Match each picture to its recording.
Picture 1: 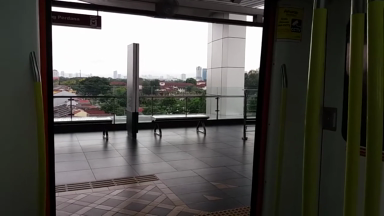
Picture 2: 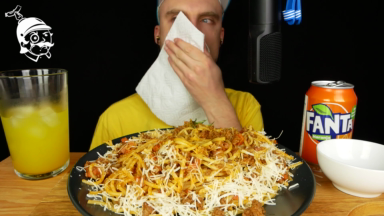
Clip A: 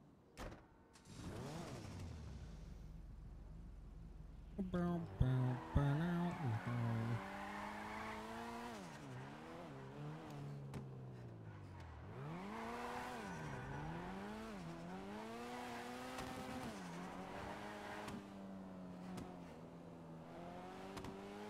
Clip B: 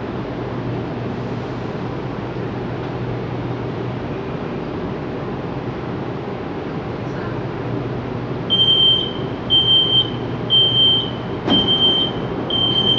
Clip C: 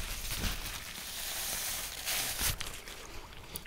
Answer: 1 B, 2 C